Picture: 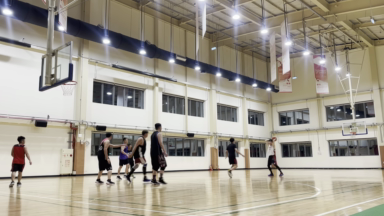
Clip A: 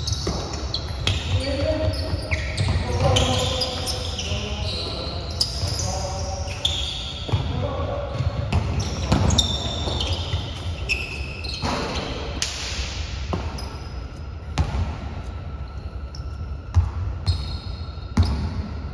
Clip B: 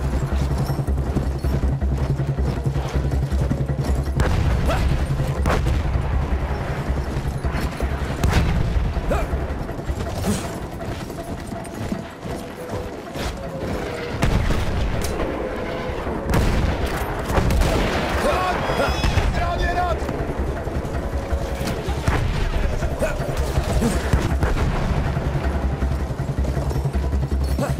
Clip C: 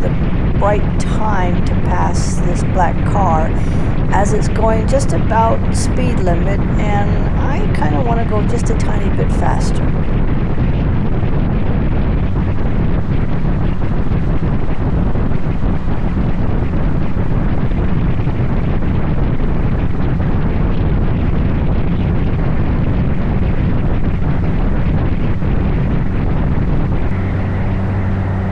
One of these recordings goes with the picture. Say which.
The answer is A